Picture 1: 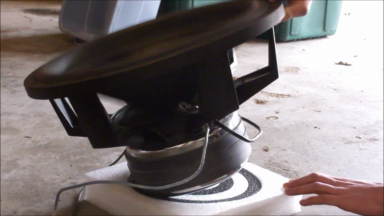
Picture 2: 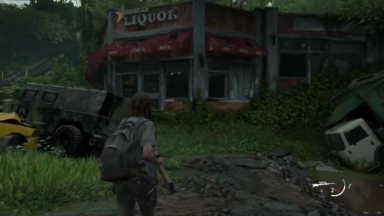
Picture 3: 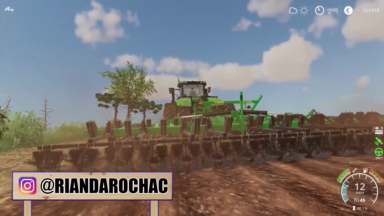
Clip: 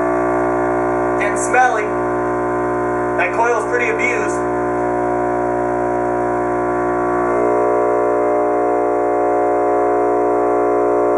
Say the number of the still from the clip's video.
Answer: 1